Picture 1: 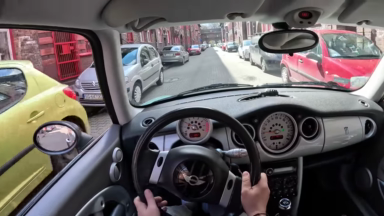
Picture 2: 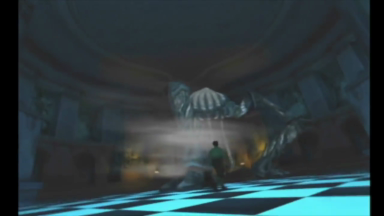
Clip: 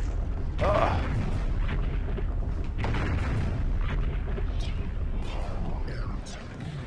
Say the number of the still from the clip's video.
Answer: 2